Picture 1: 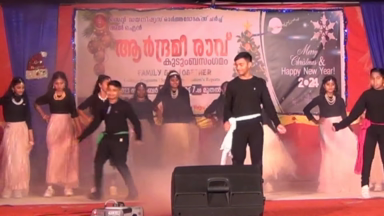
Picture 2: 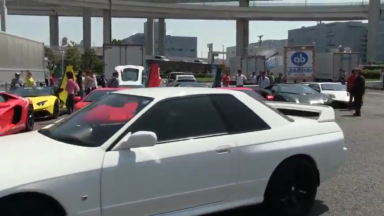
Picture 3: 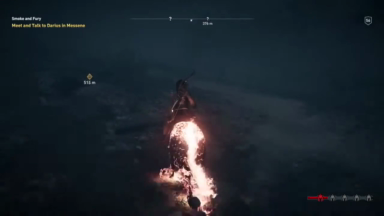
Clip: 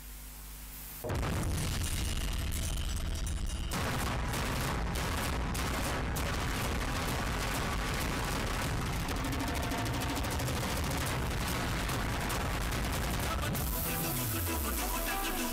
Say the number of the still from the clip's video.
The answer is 1